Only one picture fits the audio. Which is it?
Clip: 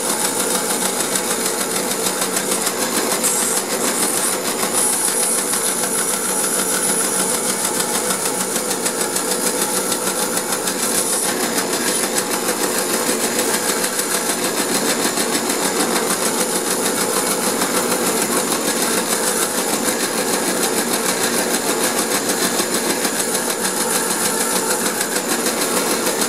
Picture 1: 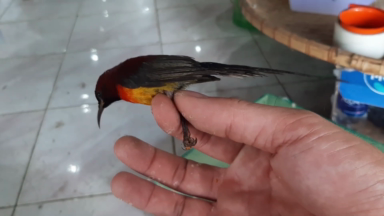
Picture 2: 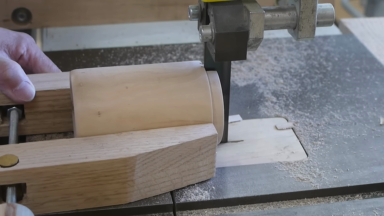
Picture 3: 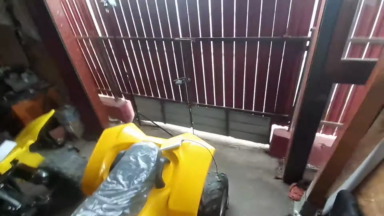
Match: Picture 2